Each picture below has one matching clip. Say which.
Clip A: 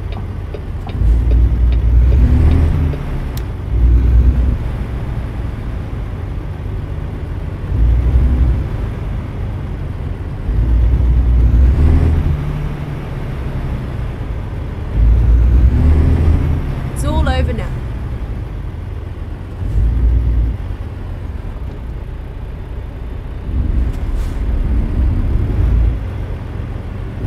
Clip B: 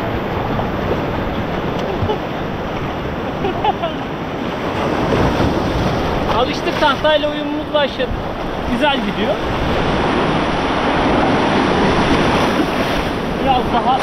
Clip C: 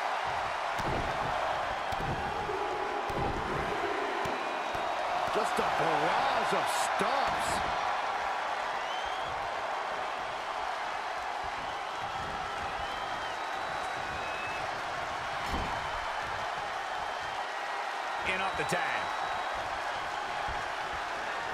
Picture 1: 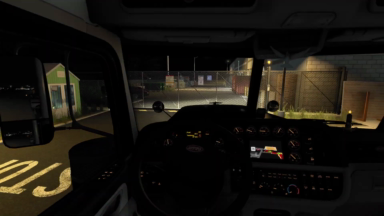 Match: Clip A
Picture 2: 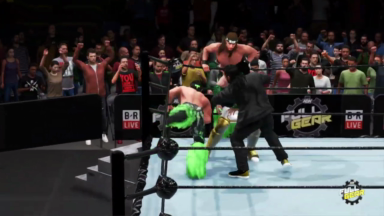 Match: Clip C